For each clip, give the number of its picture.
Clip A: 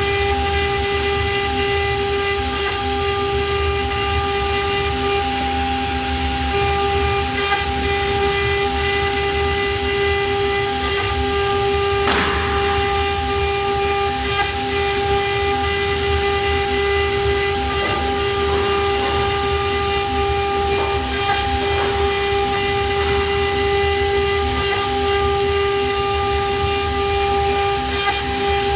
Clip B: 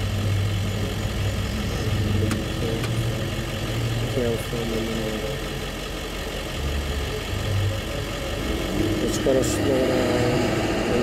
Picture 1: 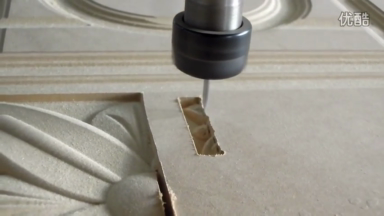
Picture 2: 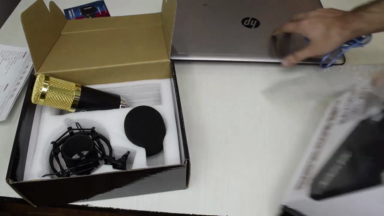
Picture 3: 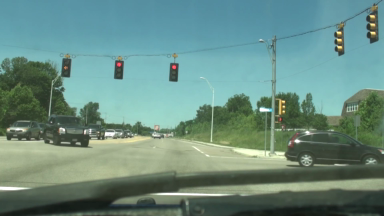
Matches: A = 1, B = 3